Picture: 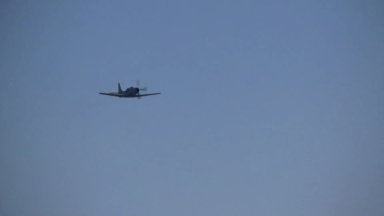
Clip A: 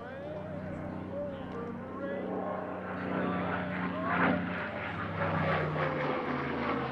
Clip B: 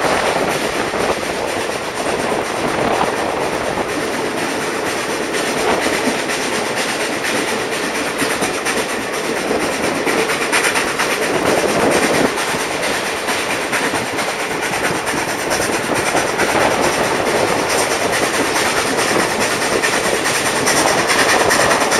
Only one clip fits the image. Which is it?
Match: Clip A